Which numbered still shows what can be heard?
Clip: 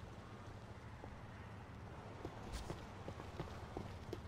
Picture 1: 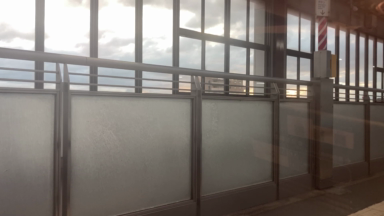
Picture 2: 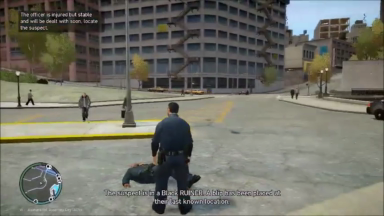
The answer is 2